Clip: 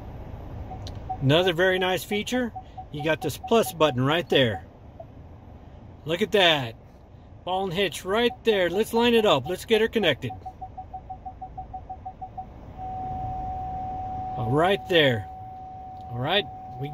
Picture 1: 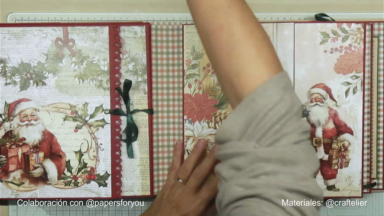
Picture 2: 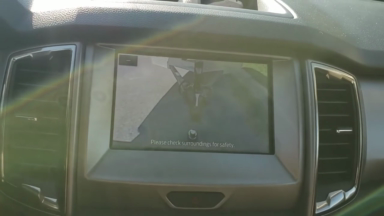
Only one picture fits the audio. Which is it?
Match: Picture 2